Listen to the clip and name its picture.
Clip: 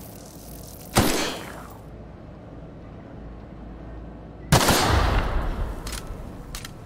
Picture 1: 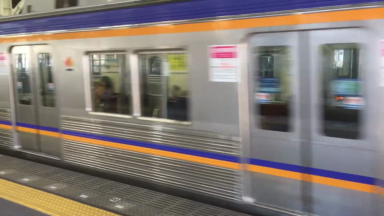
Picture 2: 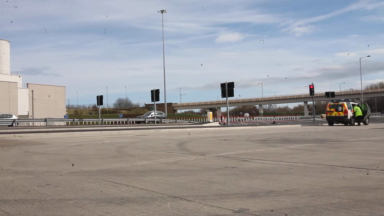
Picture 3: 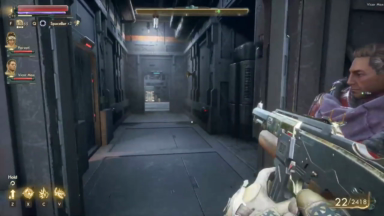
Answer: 3